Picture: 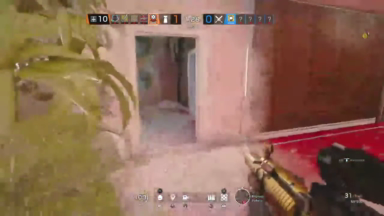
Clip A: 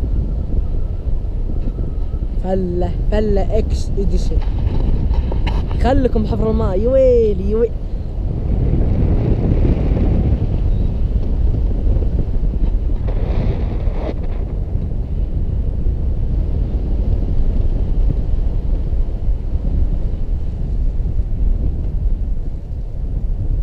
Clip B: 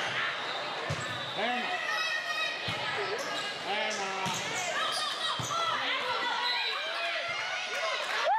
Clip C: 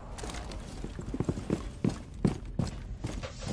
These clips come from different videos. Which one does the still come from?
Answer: C